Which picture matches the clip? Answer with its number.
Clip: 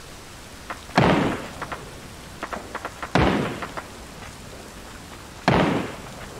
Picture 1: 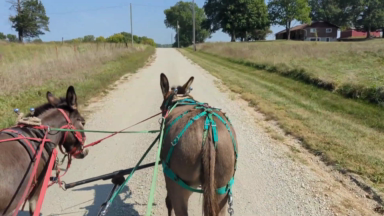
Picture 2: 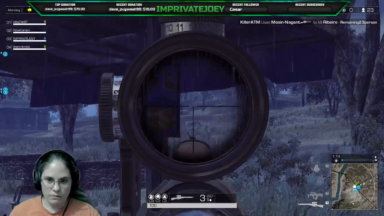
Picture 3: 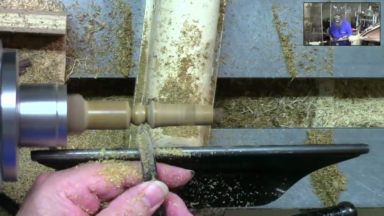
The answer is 2